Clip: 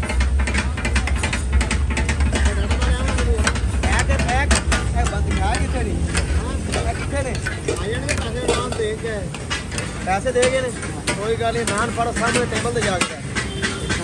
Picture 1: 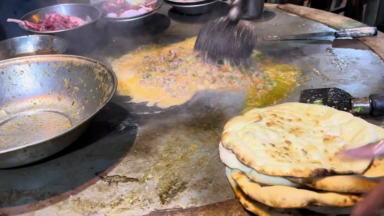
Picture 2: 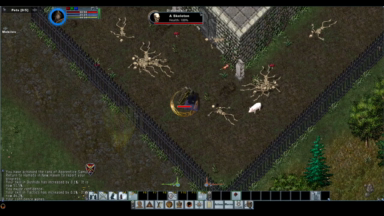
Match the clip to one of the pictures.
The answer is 1